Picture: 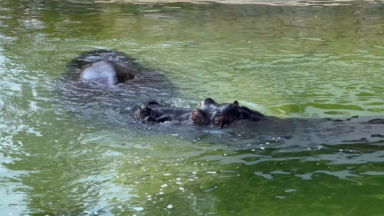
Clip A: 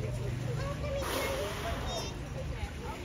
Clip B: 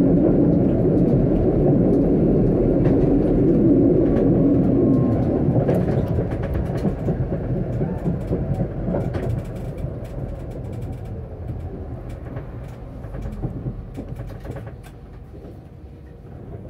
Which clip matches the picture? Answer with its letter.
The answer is A